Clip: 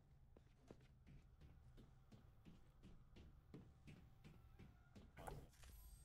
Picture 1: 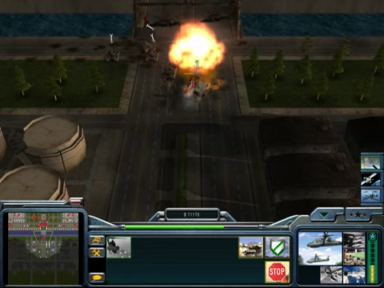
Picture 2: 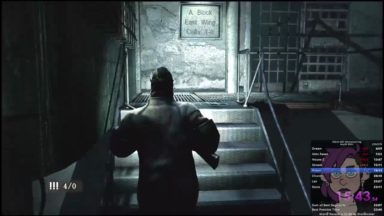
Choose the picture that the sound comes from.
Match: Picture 2